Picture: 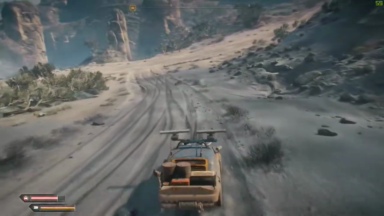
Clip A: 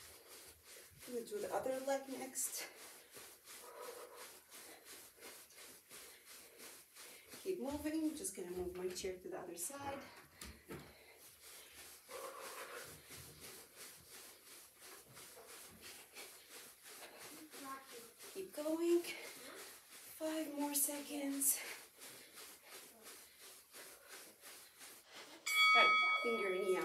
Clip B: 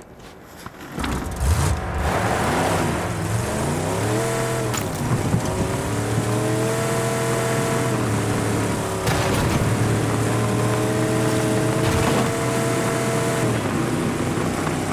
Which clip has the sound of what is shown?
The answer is B